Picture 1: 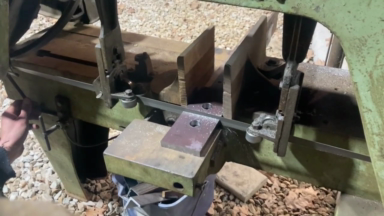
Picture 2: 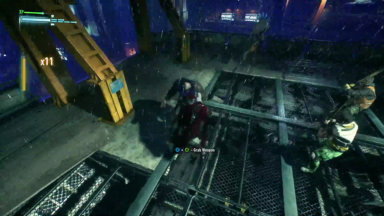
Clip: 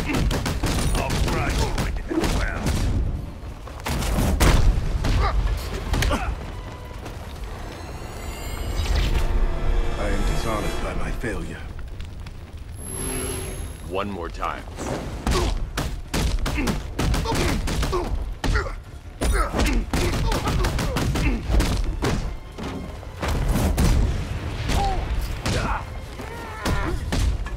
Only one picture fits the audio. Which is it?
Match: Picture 2